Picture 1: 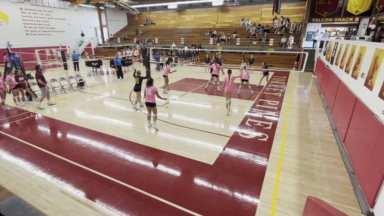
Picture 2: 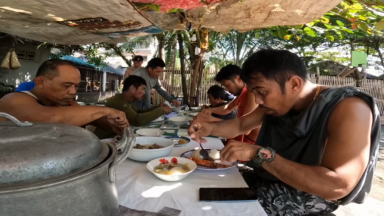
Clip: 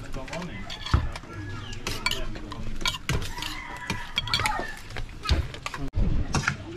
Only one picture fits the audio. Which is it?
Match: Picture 2